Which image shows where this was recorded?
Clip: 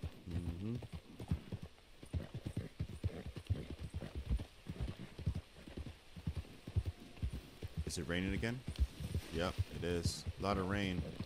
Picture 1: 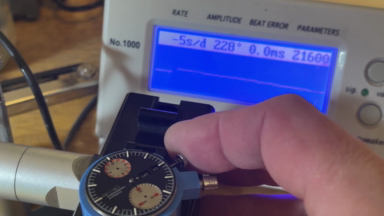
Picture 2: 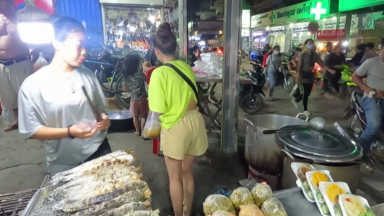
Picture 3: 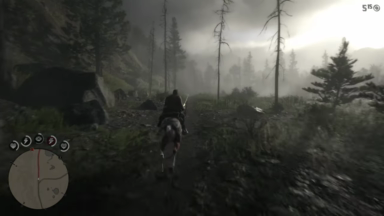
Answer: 3